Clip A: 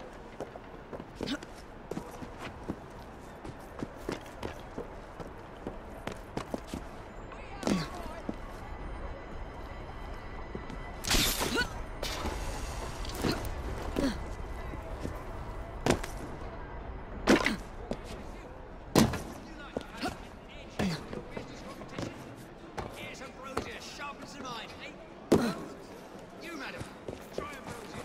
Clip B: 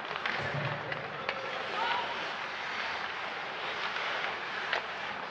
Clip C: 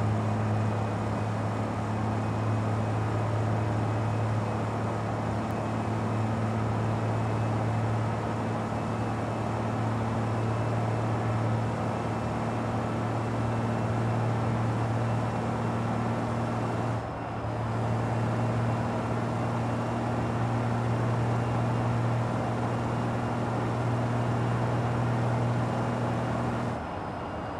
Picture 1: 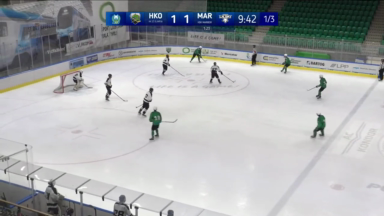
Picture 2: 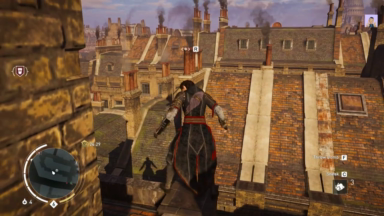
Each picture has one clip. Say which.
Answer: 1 B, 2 A